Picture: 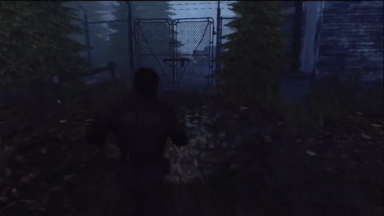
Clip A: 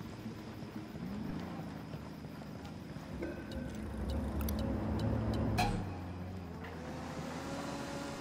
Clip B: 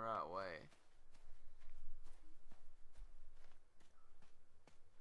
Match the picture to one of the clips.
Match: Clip B